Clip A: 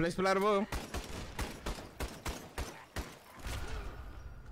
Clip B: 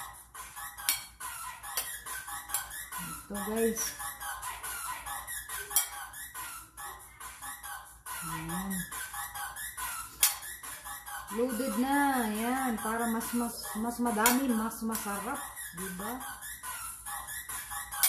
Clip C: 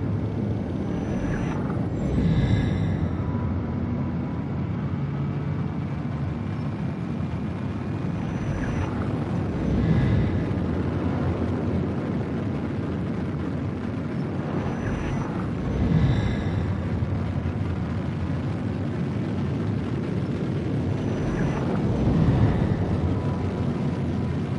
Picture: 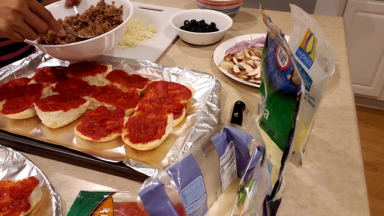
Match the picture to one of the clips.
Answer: B